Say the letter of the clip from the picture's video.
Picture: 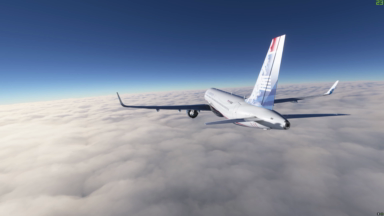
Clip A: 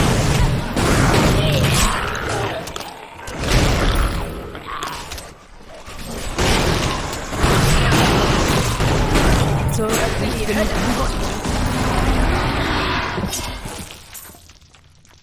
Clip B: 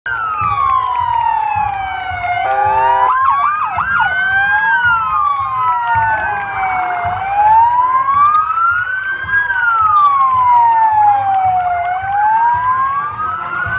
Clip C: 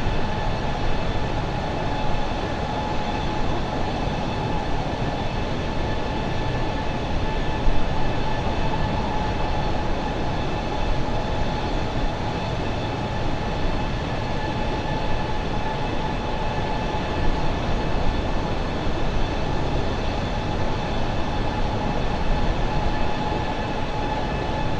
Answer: C